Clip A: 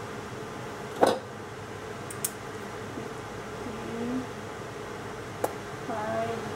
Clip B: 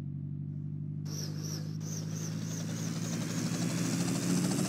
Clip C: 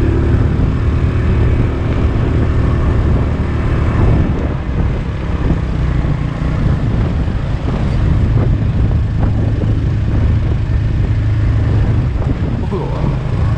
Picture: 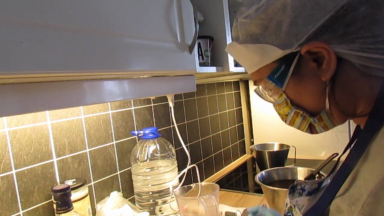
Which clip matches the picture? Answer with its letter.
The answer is A